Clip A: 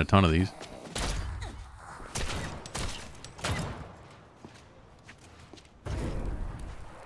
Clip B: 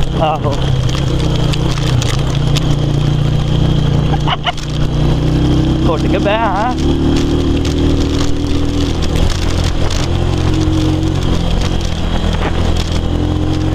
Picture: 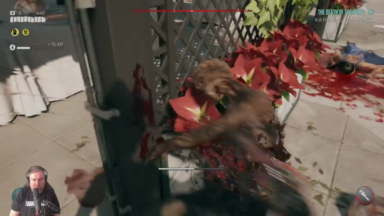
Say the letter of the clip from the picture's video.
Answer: A